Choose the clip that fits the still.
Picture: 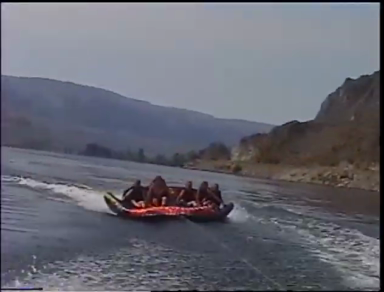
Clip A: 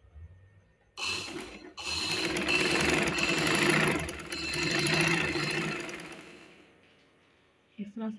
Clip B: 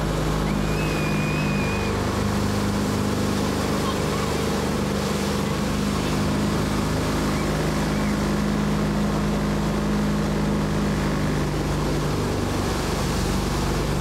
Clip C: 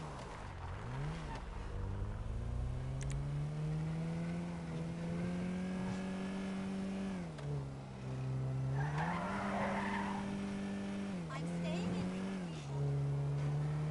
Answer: B